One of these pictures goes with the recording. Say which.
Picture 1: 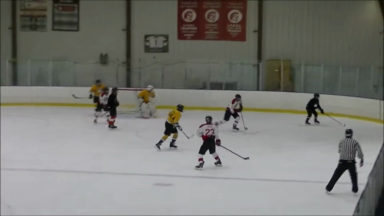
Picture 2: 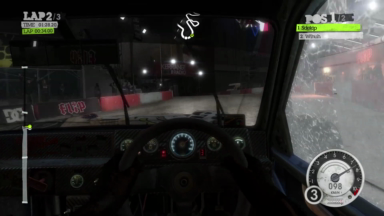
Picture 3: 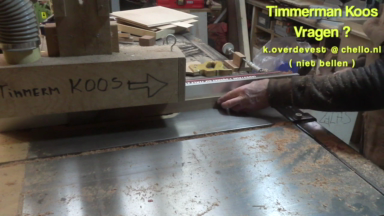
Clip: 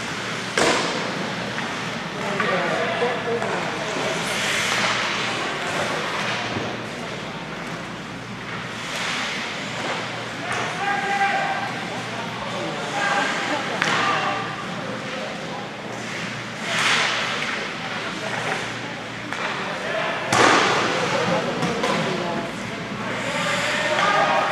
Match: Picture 1